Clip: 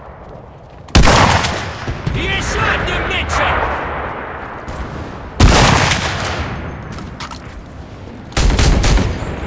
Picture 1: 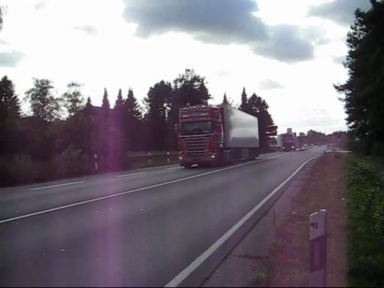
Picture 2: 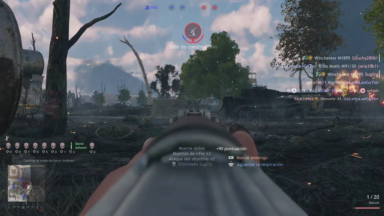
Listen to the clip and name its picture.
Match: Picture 2